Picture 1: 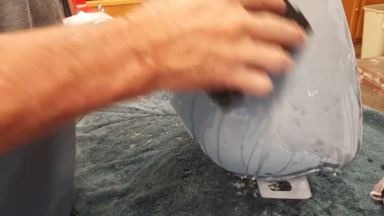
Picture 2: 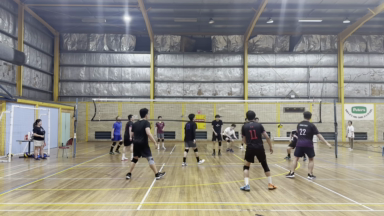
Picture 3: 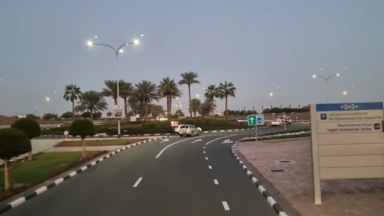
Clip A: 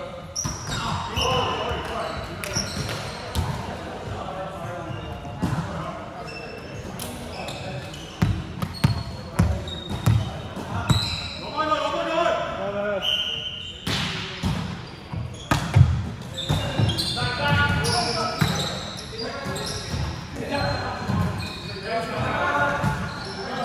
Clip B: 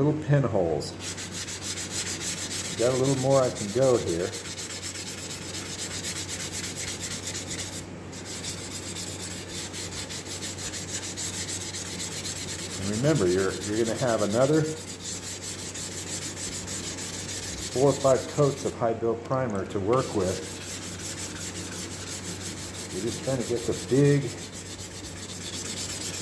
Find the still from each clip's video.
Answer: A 2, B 1